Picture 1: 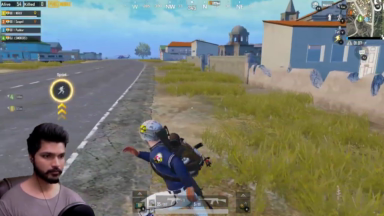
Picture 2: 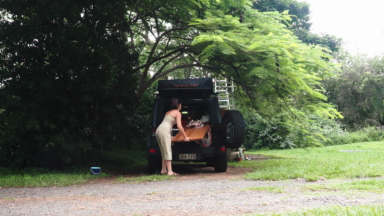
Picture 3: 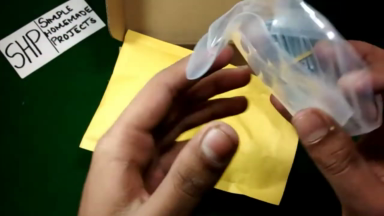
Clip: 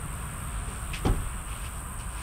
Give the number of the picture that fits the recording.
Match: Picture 2